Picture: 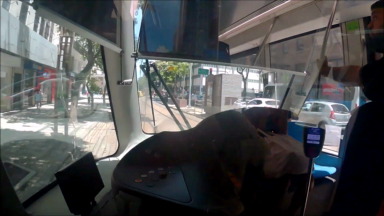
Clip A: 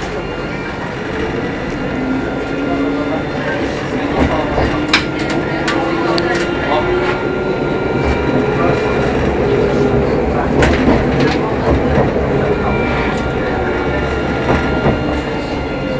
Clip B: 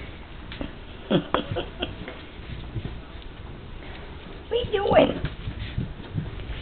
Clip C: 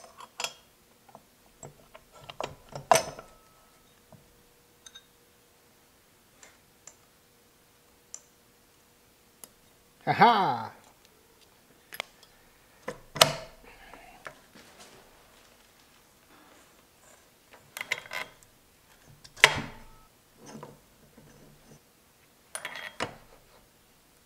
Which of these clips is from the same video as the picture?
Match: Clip A